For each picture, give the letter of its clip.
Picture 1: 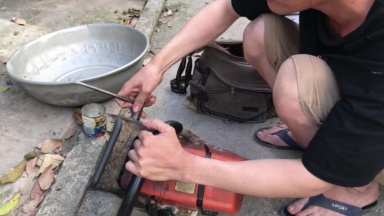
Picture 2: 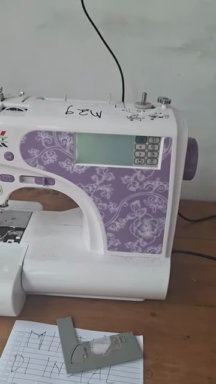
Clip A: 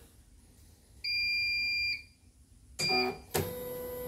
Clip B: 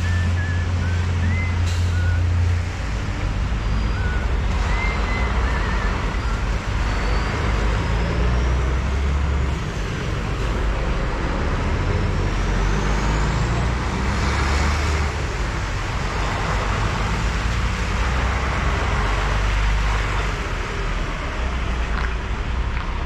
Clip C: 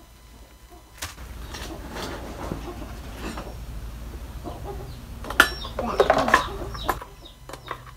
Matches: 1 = C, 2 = A